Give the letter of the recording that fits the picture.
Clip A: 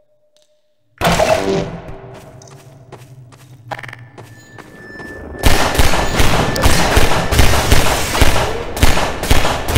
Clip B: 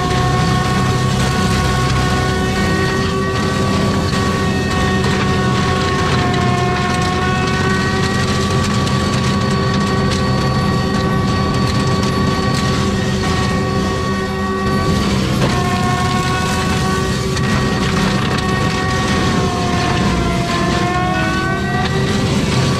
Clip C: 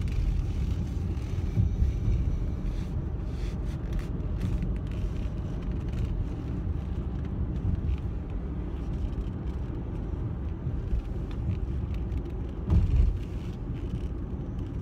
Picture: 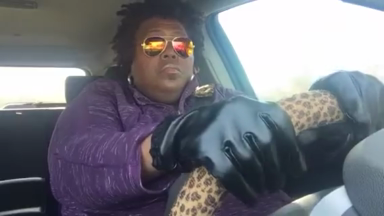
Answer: C